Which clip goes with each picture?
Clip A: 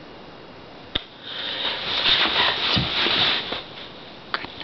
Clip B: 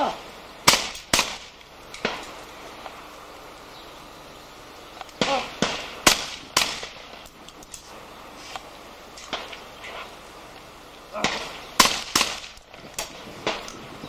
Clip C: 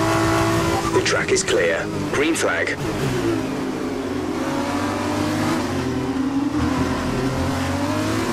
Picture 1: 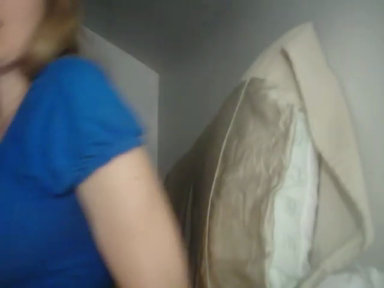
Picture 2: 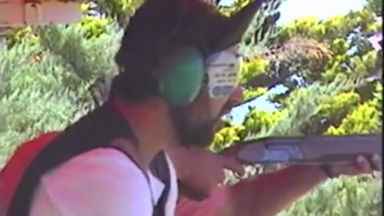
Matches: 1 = A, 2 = B